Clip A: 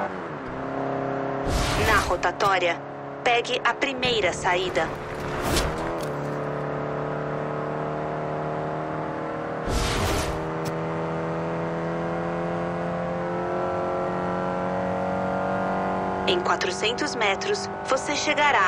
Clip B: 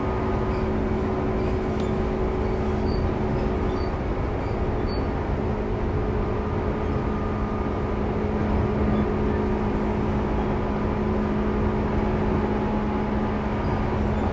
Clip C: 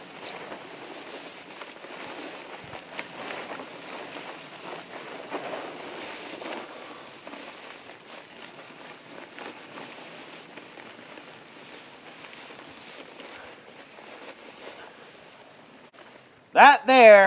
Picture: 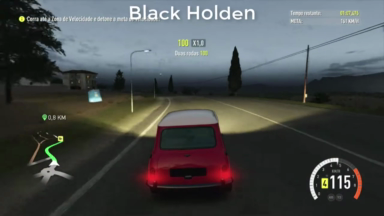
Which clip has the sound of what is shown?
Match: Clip A